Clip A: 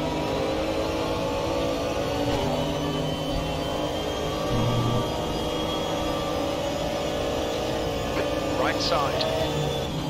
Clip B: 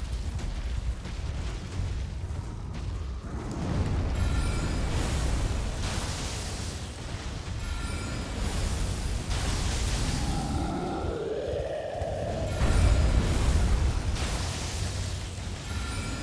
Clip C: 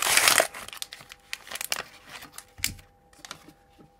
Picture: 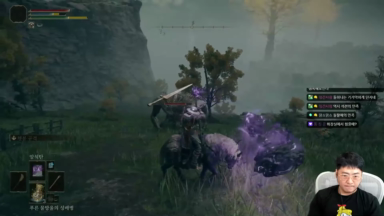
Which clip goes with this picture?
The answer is B